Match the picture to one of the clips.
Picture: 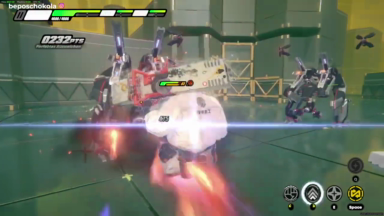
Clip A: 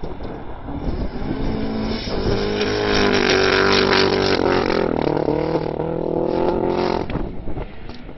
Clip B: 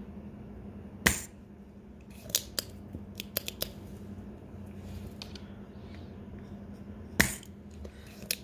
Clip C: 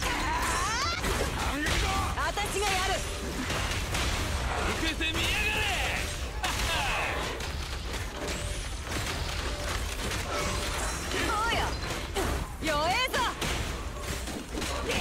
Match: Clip C